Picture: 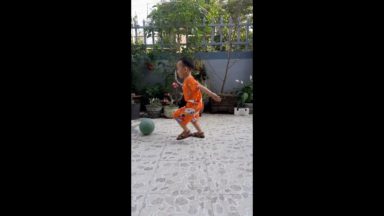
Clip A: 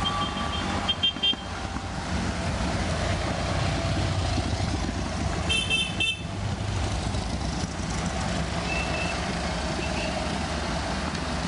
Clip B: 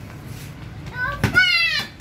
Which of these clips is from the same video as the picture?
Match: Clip B